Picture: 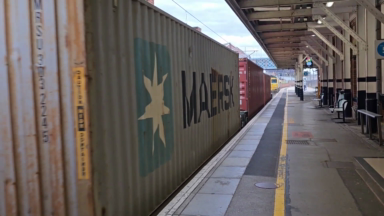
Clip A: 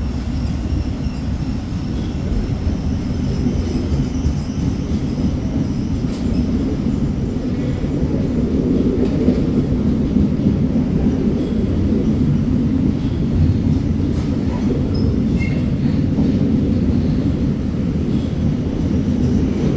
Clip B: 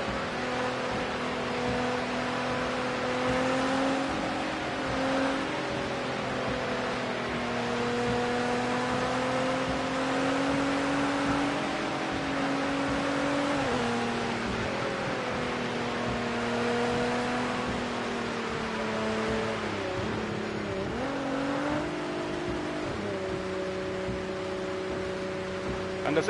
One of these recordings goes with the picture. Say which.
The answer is A